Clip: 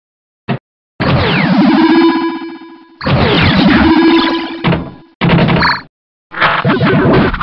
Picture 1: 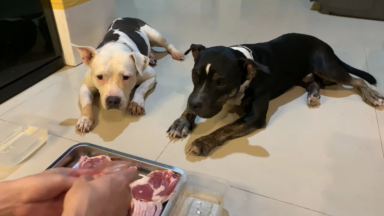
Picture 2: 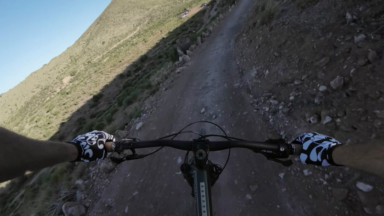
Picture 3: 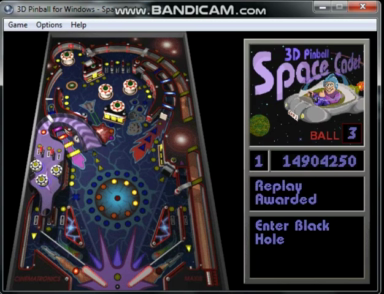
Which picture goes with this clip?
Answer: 3